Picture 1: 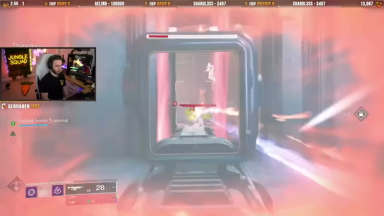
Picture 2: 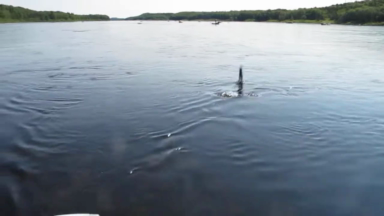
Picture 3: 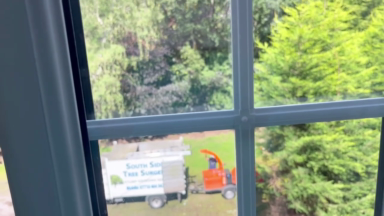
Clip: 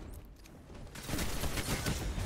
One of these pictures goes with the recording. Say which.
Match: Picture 1